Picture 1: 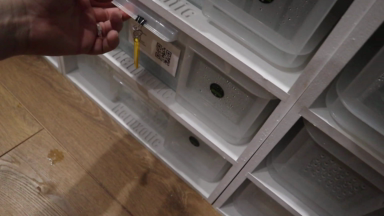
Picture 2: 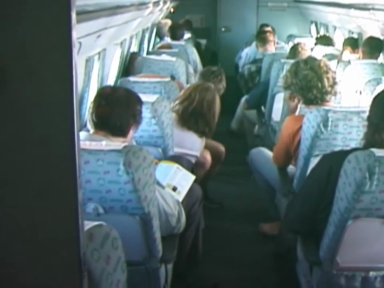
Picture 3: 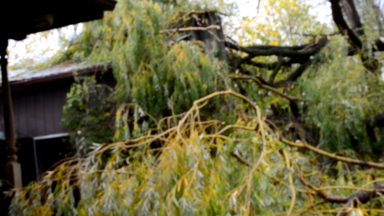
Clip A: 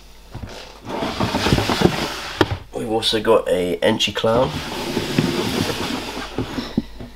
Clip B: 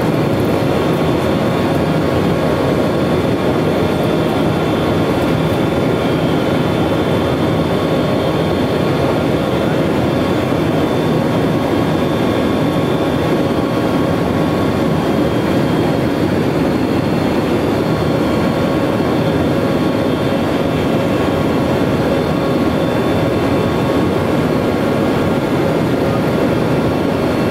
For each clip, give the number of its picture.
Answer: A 1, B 2